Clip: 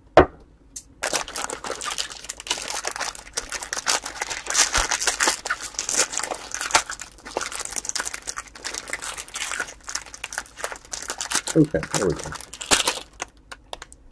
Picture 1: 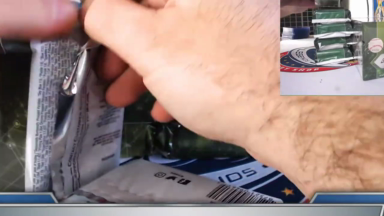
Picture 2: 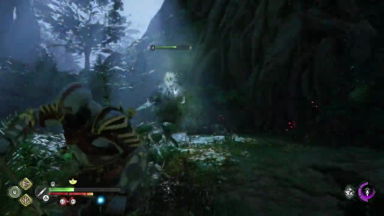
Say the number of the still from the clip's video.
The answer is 1